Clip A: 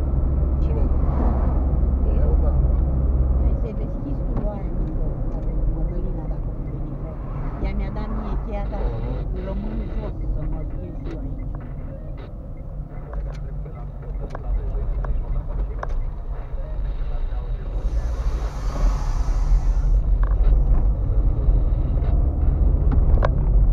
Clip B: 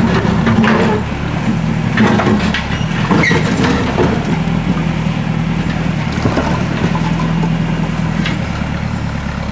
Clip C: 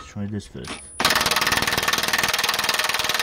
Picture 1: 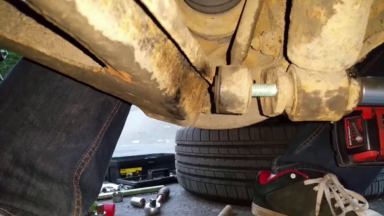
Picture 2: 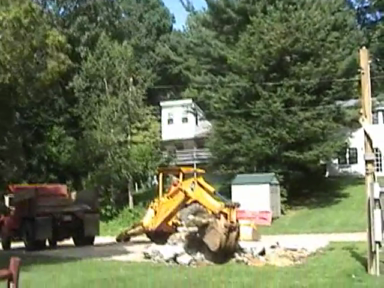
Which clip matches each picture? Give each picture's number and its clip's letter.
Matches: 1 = C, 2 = B